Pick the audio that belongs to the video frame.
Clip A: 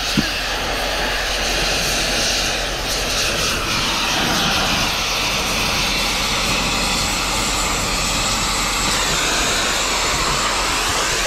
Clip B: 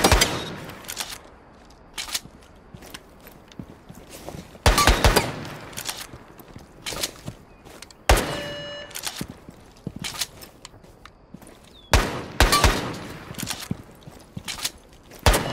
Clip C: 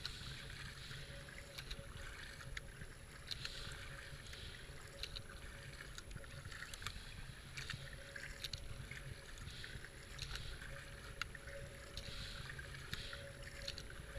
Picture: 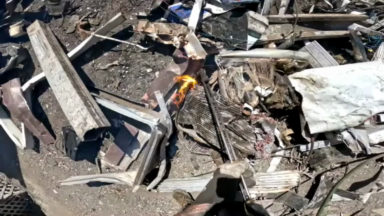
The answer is A